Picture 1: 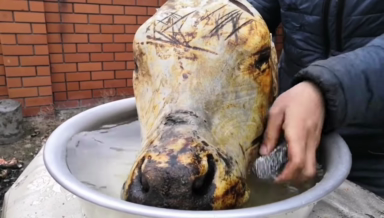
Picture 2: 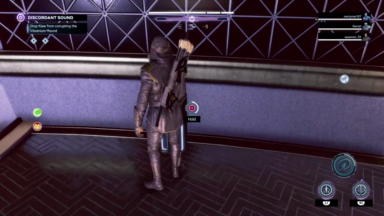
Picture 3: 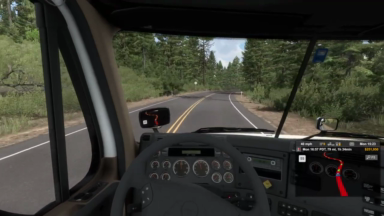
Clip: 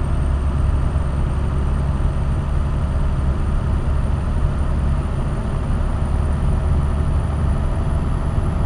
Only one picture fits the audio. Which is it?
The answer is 3